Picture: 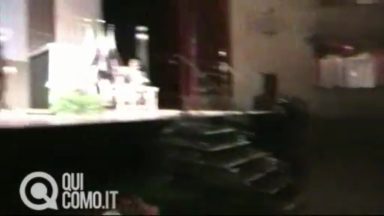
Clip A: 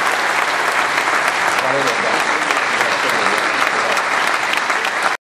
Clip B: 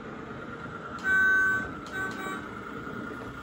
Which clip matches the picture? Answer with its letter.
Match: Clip A